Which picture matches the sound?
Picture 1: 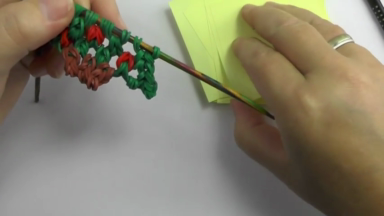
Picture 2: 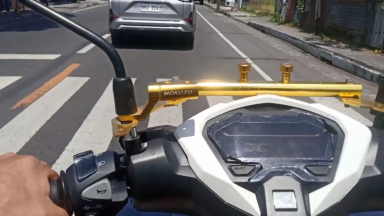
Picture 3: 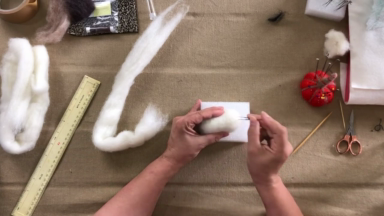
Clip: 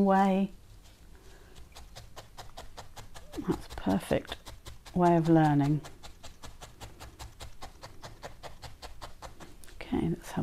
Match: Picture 3